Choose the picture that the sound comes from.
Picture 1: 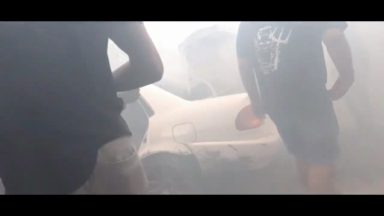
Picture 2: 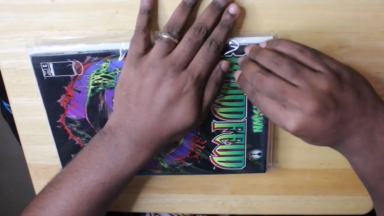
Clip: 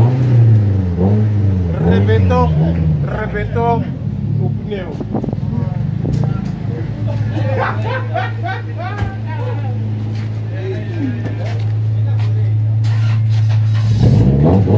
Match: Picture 1